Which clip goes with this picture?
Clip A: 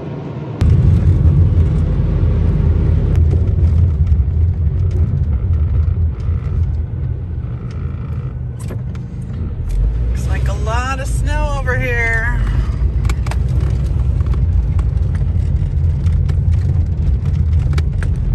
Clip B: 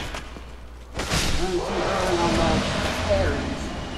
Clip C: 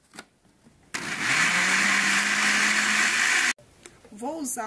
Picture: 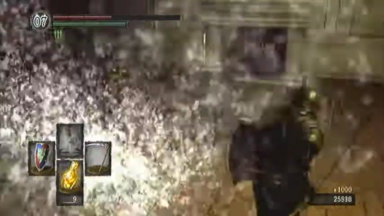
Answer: B